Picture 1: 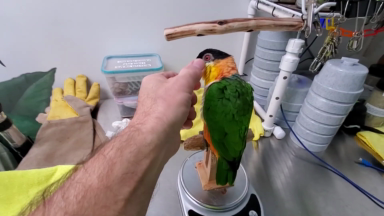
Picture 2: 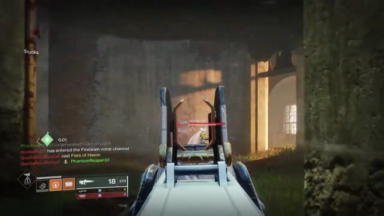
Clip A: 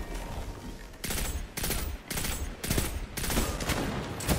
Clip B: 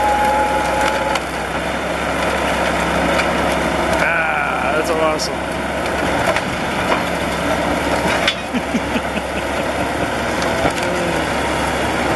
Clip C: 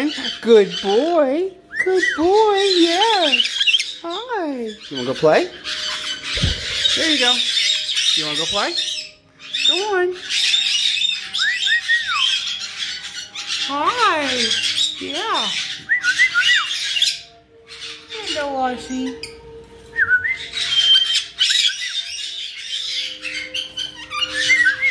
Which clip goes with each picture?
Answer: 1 C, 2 A